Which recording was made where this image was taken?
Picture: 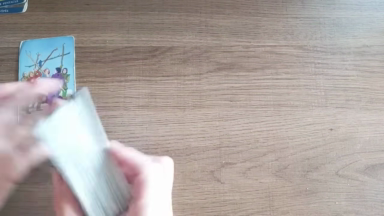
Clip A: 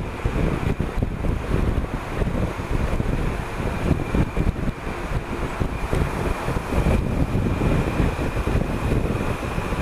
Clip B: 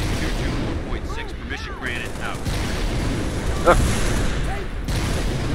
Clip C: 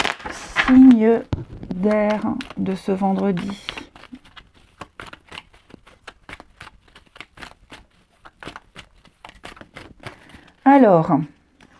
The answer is C